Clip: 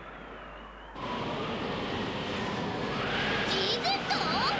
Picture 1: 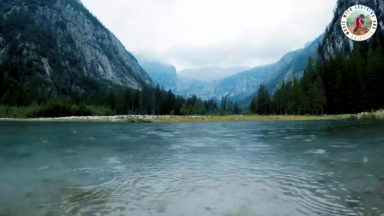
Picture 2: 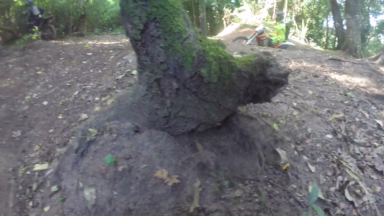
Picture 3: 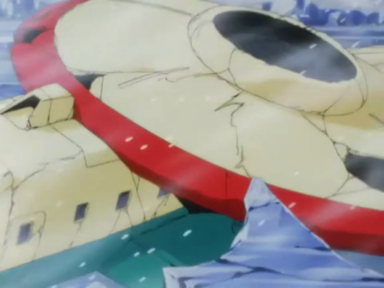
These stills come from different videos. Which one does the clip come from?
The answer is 3